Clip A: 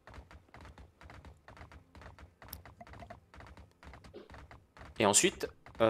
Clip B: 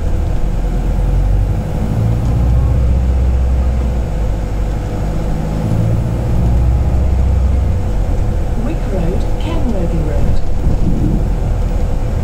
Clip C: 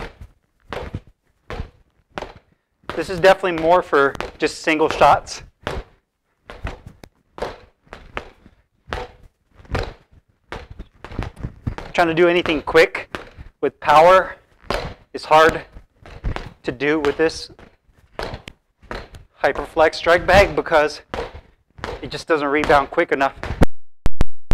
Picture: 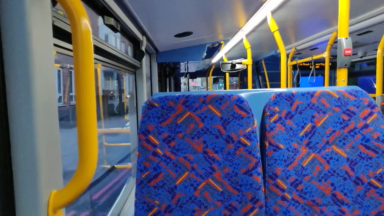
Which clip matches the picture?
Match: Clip B